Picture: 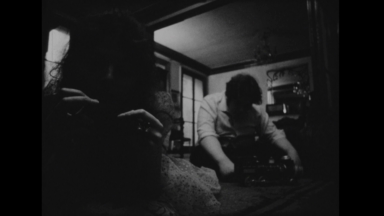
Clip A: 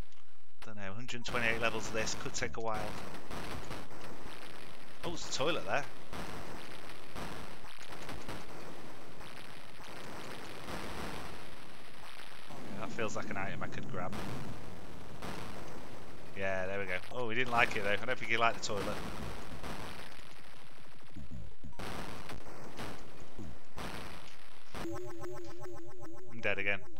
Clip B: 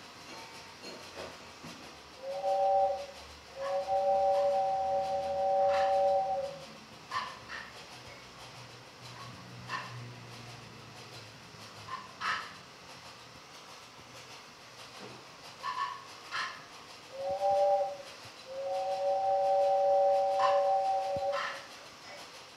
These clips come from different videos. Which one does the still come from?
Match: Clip B